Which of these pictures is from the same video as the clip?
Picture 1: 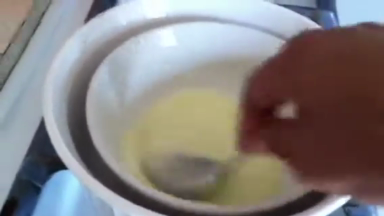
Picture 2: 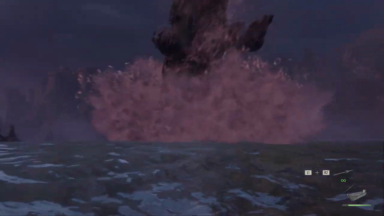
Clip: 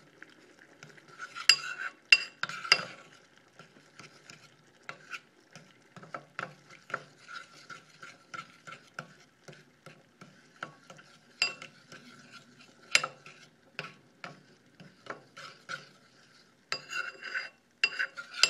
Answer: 1